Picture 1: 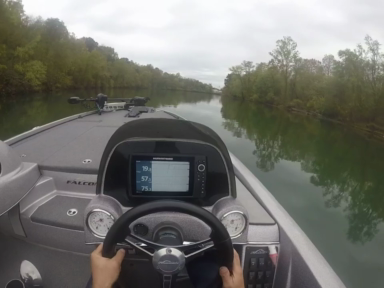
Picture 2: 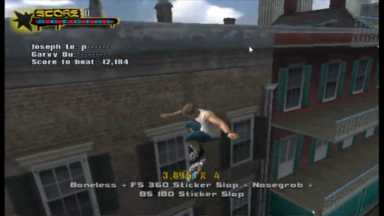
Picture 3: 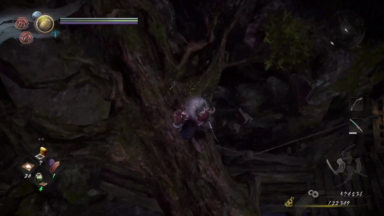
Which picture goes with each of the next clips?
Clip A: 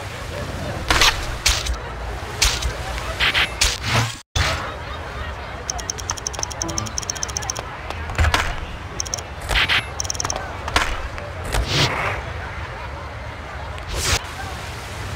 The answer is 2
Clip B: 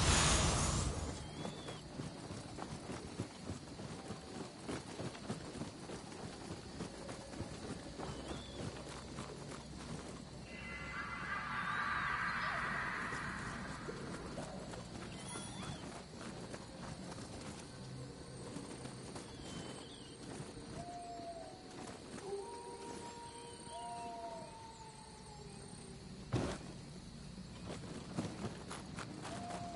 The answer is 3